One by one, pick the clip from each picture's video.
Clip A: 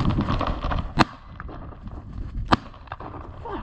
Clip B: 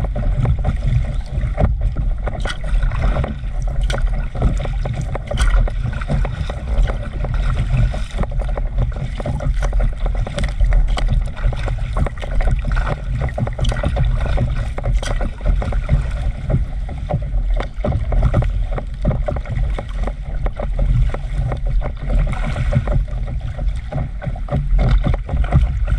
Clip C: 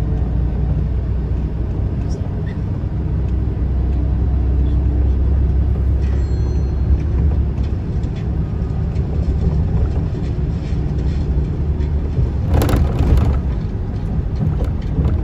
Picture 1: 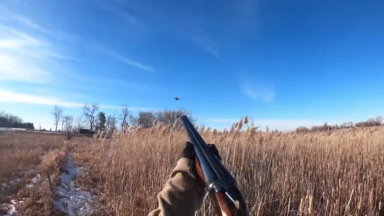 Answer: A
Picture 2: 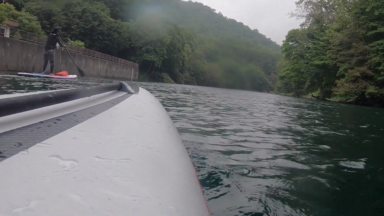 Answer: B